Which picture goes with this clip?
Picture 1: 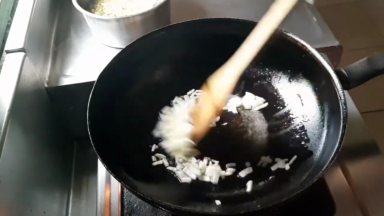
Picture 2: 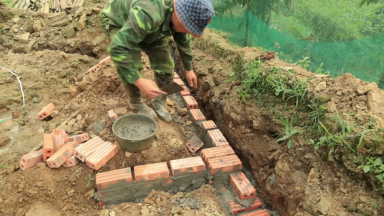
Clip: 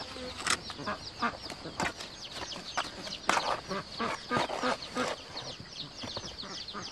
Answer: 2